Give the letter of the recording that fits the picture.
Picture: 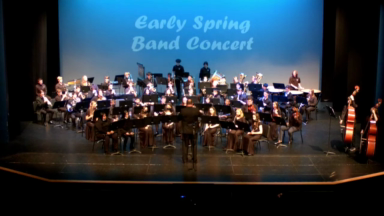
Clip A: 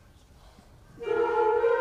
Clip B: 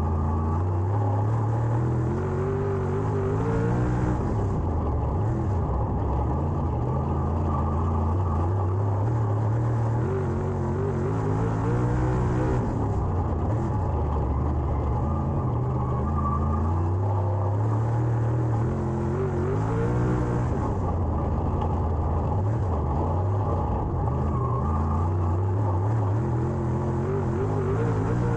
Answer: A